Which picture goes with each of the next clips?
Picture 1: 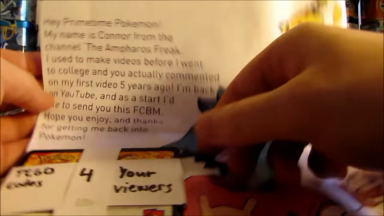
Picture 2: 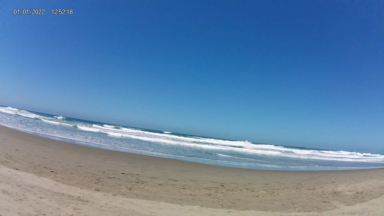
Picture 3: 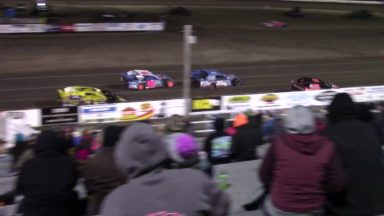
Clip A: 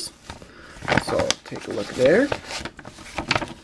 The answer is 1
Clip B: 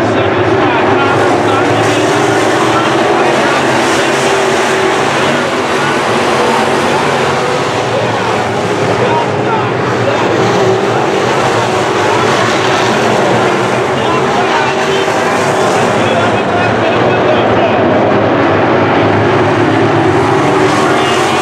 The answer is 3